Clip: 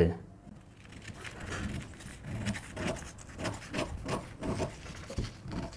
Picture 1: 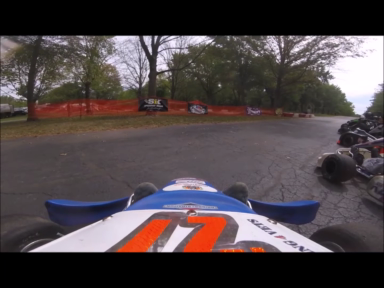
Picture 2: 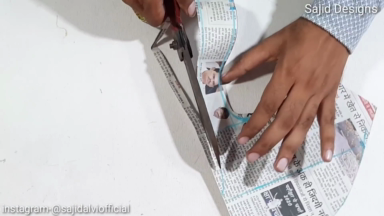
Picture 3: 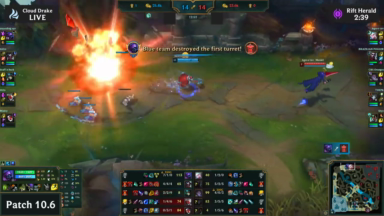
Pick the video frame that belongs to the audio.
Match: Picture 2